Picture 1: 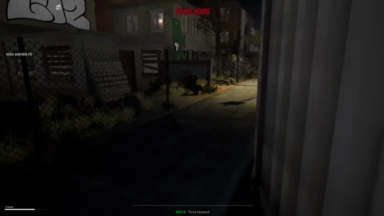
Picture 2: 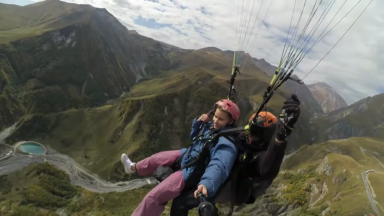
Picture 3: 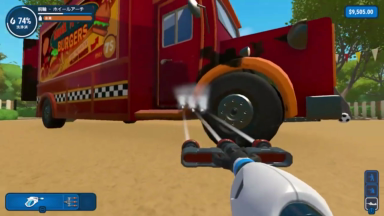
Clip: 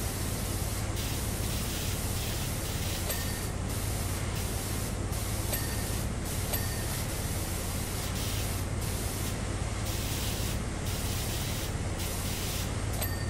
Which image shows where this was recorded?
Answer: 3